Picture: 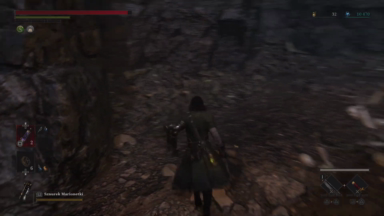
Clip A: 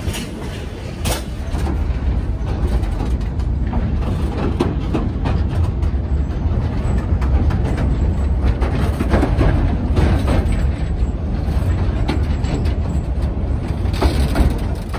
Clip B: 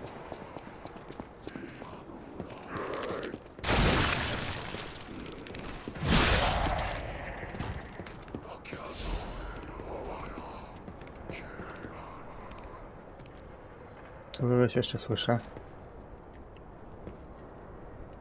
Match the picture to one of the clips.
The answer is B